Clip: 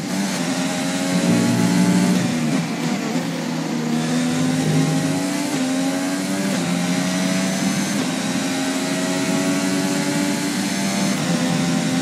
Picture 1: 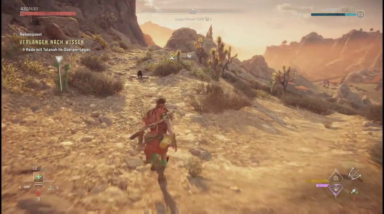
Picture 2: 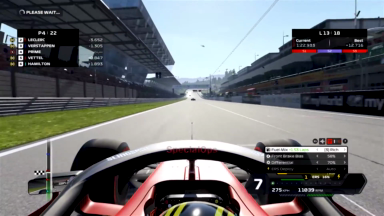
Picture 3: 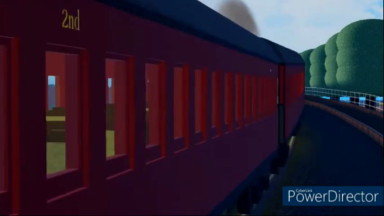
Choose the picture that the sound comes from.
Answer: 2